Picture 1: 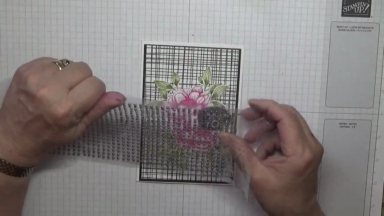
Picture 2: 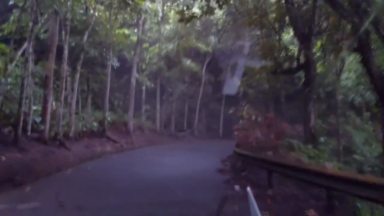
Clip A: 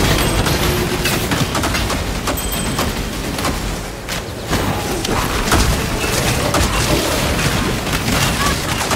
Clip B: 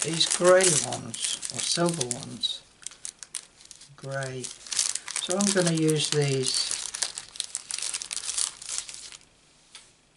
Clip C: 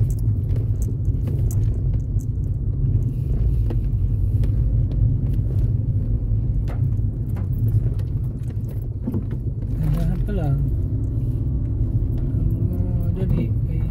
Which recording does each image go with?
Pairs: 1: B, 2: C